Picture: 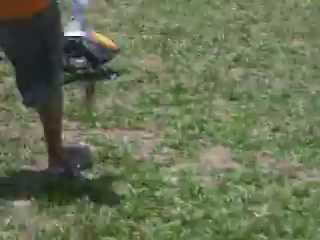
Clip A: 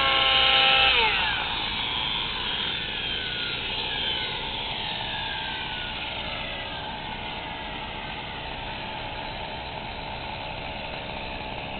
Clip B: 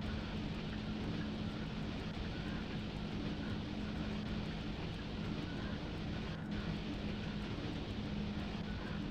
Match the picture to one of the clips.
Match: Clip A